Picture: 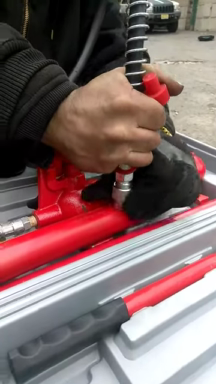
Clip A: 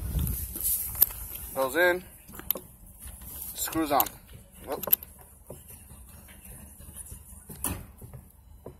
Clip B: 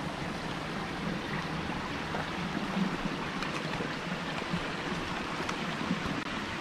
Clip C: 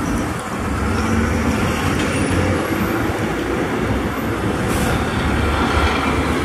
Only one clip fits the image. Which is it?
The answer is A